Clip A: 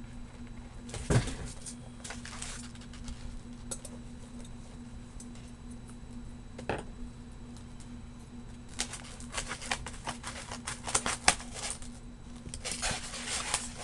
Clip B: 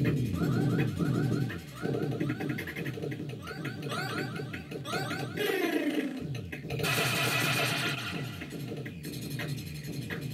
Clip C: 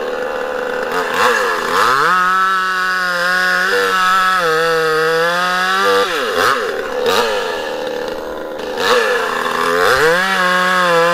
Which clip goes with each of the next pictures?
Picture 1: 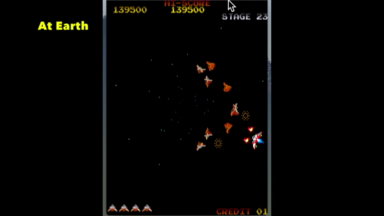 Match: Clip B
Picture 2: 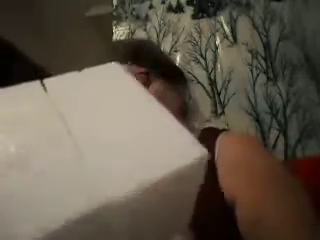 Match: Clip A